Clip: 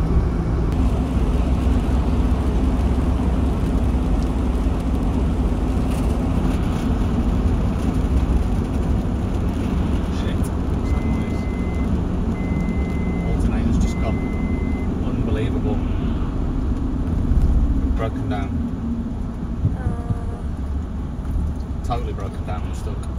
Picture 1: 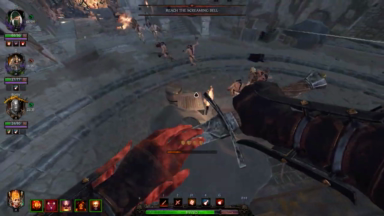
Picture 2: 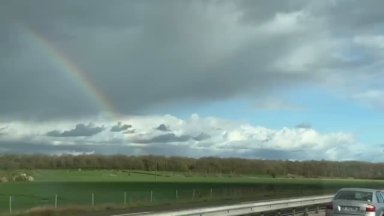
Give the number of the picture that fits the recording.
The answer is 2